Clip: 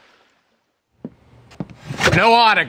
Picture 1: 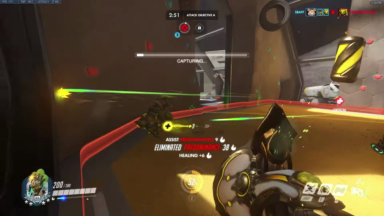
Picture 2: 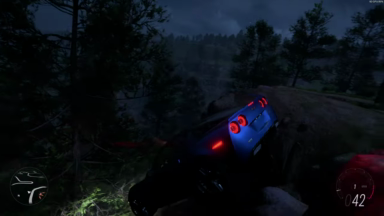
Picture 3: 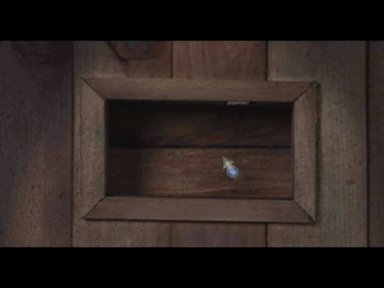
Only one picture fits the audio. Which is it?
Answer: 3